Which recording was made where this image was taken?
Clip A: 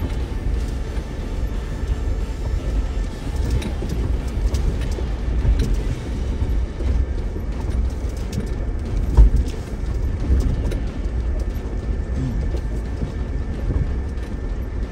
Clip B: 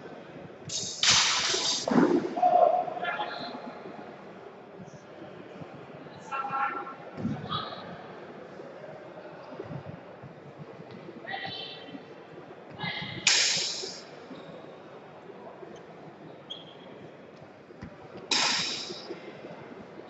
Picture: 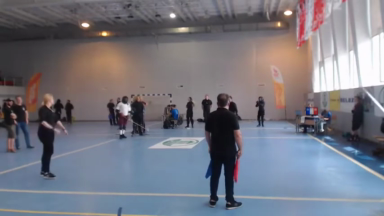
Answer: B